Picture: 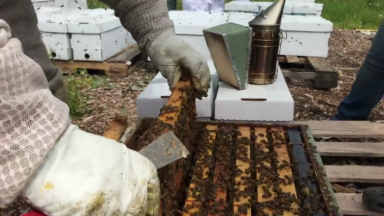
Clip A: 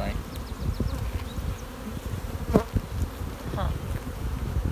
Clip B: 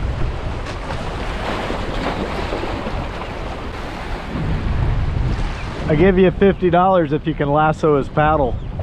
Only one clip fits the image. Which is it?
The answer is A